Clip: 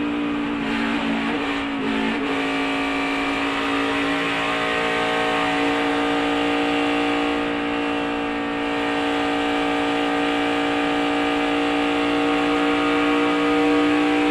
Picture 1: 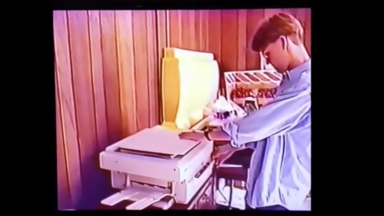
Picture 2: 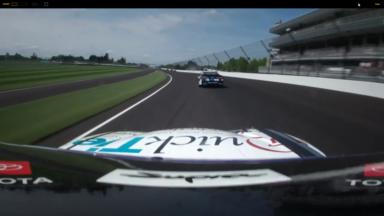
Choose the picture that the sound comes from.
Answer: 2